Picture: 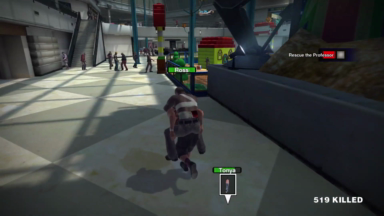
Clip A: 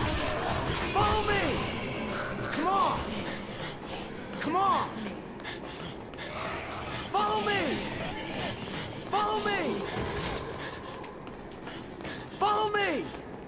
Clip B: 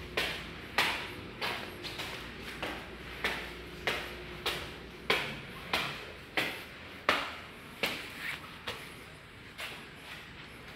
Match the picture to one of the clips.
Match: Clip A